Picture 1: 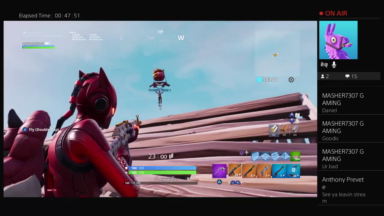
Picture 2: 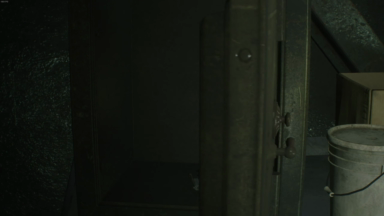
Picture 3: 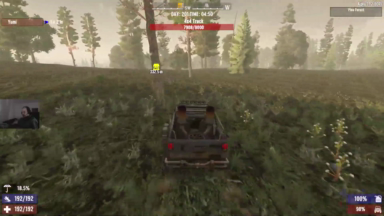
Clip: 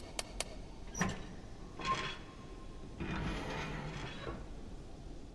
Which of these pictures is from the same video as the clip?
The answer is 2